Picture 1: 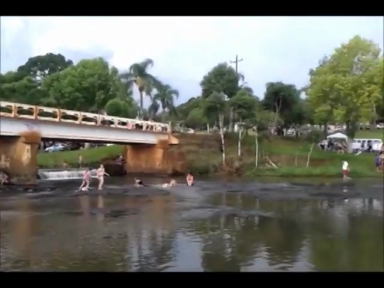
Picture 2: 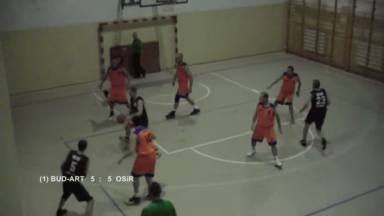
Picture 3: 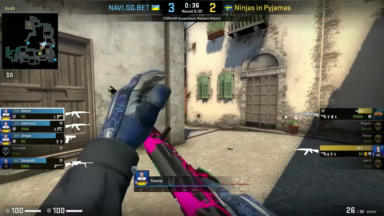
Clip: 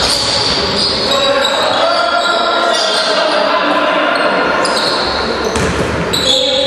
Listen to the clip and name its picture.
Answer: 2